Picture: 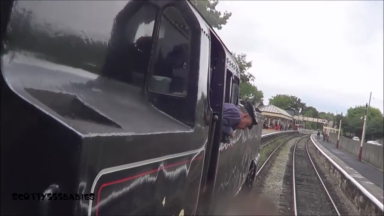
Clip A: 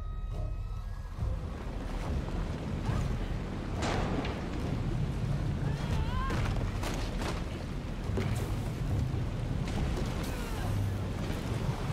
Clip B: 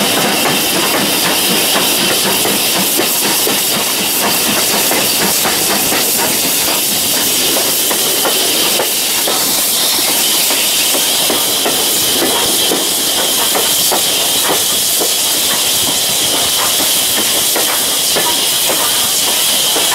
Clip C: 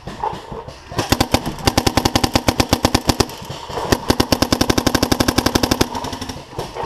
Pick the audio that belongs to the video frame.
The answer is B